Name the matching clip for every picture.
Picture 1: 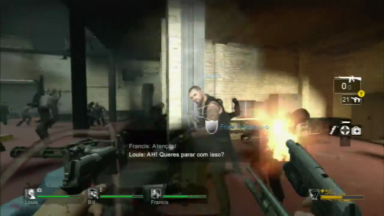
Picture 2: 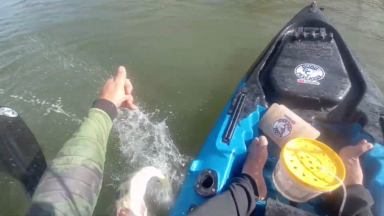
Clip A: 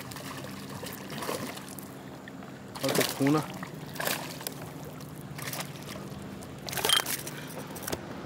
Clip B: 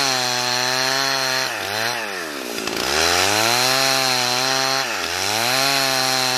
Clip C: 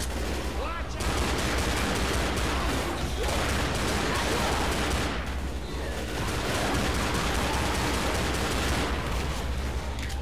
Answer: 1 C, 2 A